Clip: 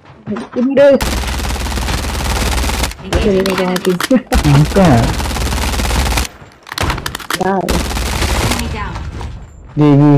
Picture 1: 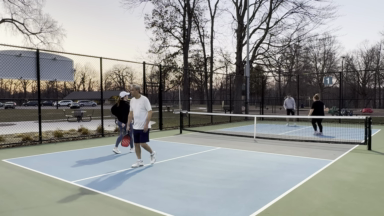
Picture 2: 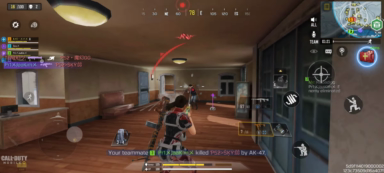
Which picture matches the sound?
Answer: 2